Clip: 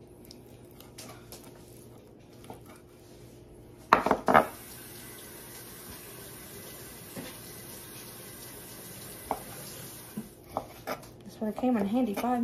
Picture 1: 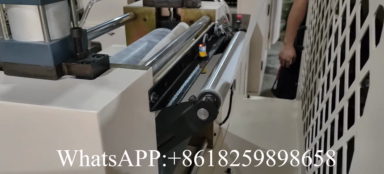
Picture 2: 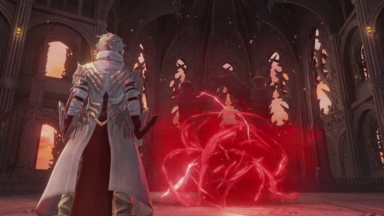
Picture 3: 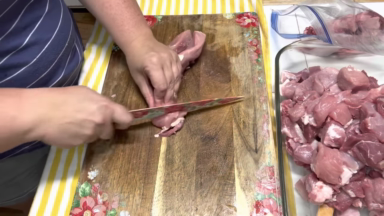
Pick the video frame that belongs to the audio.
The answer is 3